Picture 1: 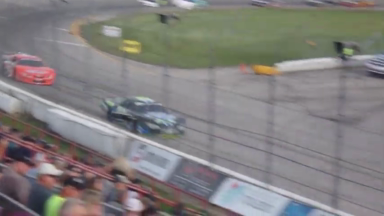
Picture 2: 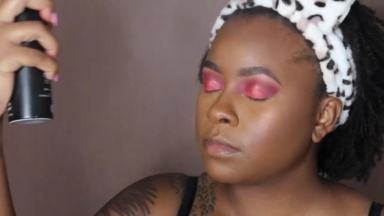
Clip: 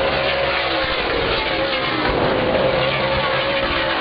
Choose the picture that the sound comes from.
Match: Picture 1